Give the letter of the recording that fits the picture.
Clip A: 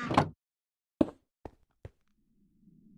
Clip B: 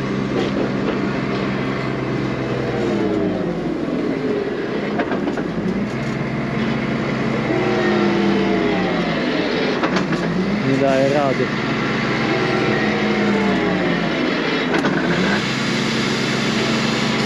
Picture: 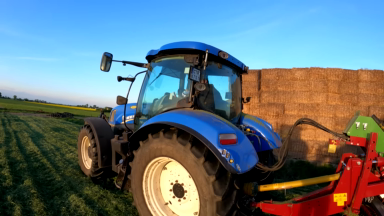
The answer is B